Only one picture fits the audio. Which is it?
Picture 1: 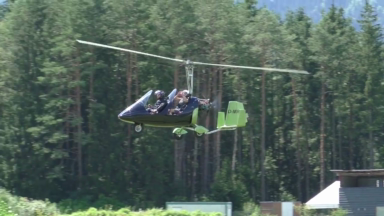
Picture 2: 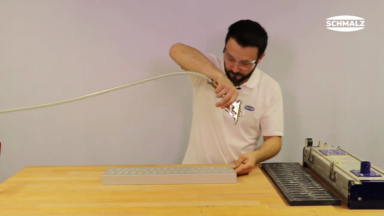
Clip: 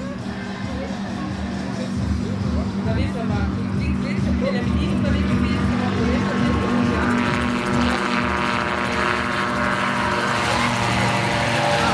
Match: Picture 1